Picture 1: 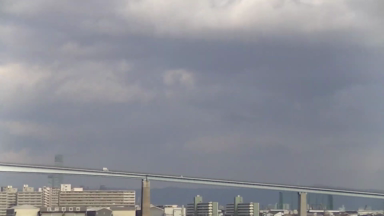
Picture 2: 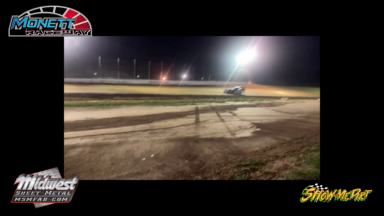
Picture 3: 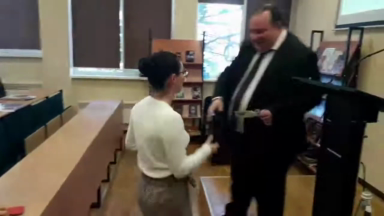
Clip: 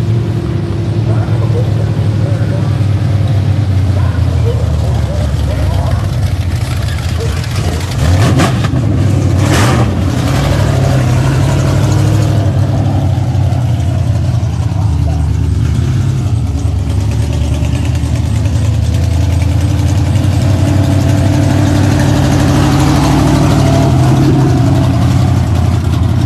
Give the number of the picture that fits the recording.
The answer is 2